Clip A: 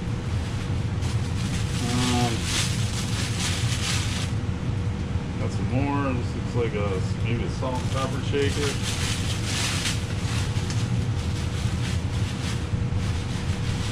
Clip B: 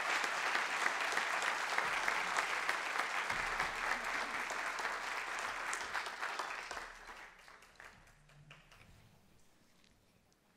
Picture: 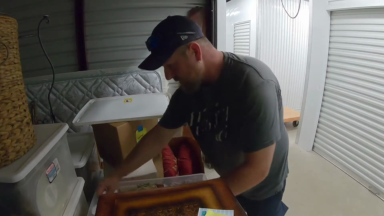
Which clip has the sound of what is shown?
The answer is A